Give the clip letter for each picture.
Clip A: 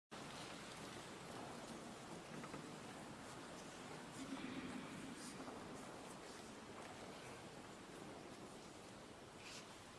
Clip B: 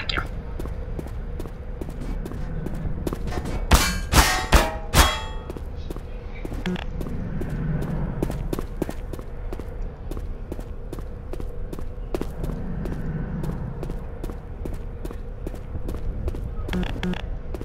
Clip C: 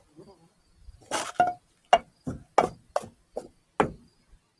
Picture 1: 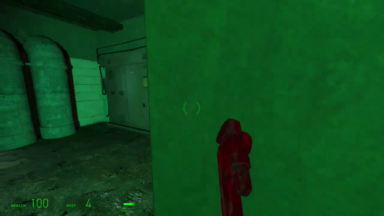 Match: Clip B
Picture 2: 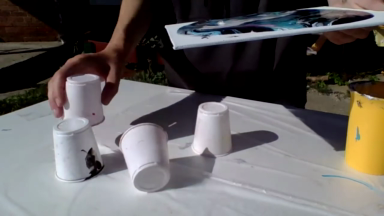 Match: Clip C